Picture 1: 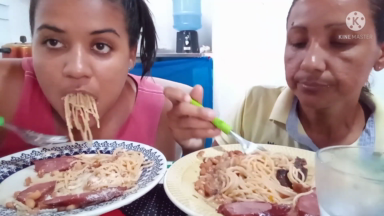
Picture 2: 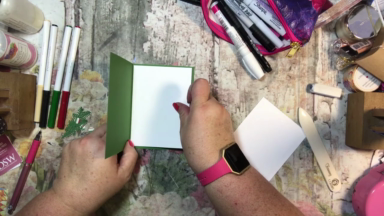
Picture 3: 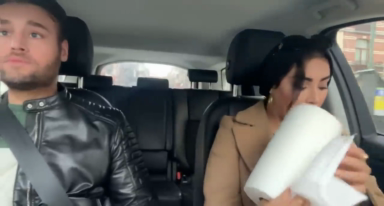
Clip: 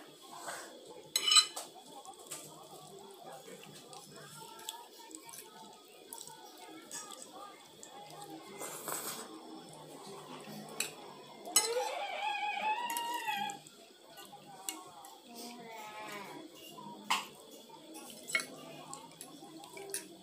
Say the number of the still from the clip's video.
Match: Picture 1